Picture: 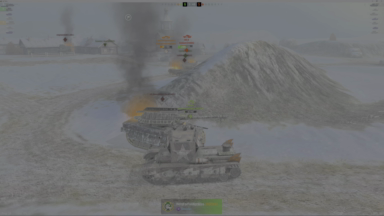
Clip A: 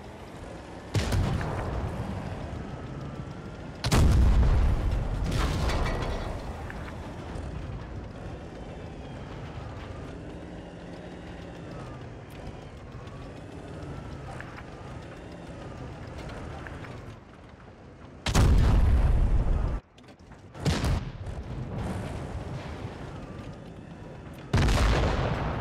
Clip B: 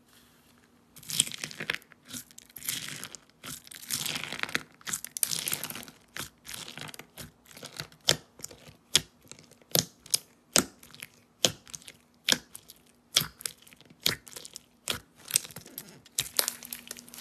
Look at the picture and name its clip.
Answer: A